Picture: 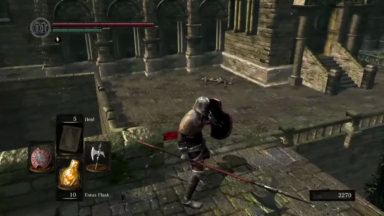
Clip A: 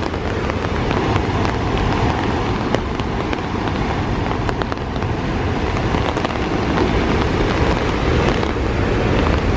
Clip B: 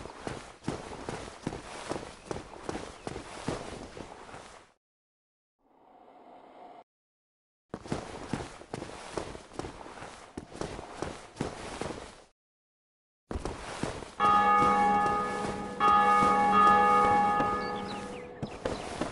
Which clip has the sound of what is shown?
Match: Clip B